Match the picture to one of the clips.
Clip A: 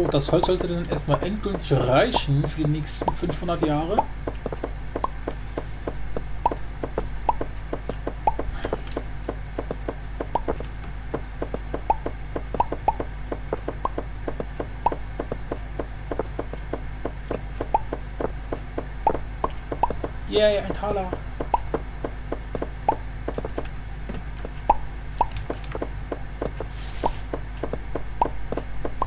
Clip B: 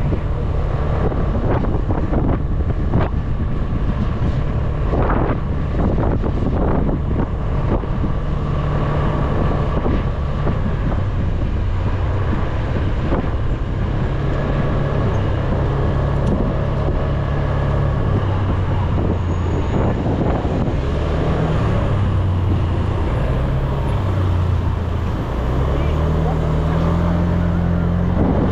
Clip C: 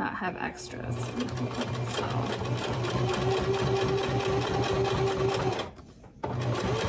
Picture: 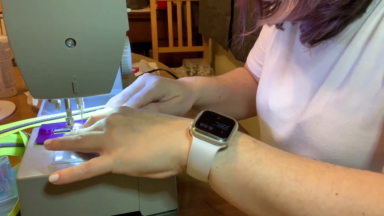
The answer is C